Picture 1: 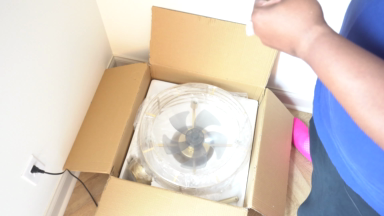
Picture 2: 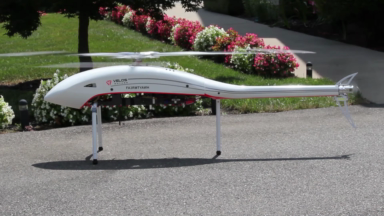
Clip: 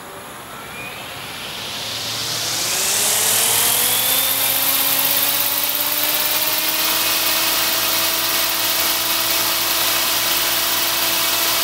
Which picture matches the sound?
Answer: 2